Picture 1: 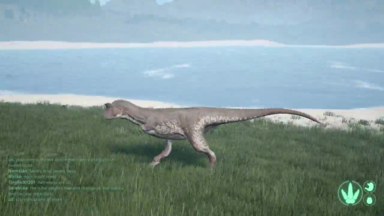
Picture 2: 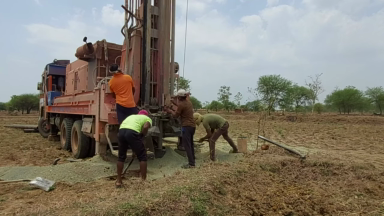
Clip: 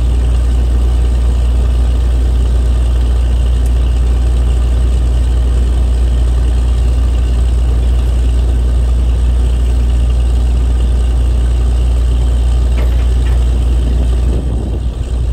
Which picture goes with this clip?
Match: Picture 2